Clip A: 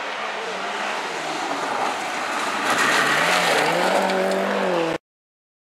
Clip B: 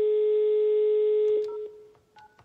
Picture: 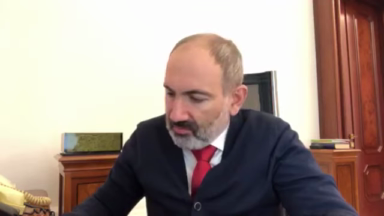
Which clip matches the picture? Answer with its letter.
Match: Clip B